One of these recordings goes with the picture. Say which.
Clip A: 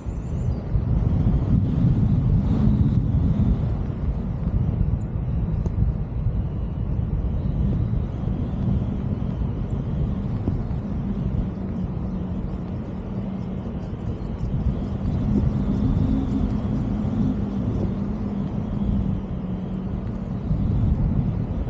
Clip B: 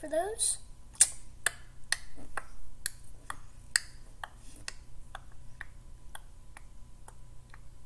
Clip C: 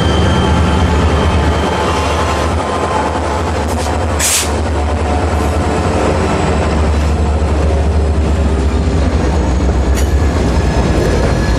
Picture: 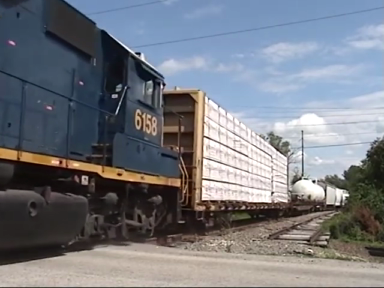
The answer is C